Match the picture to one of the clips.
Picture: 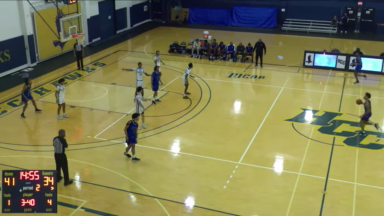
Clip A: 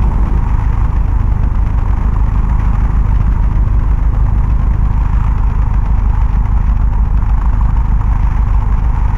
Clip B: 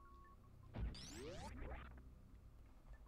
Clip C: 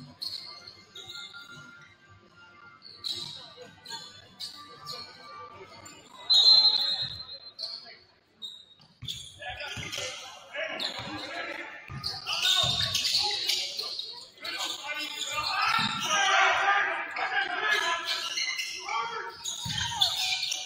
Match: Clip C